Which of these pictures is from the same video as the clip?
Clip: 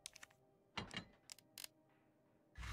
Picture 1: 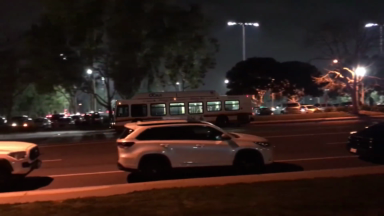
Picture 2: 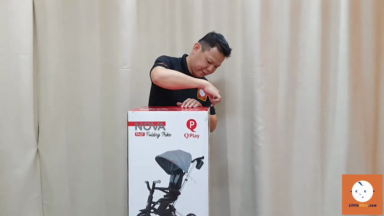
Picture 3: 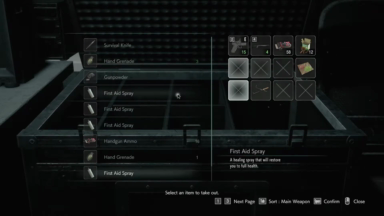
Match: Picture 3